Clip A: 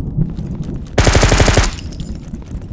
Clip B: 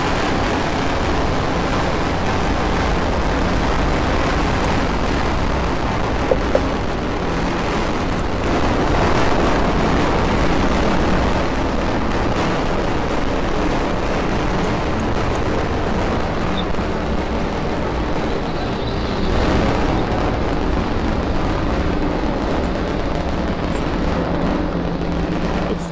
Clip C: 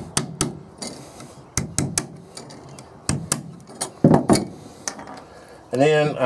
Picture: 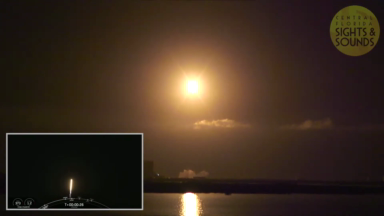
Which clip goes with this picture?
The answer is B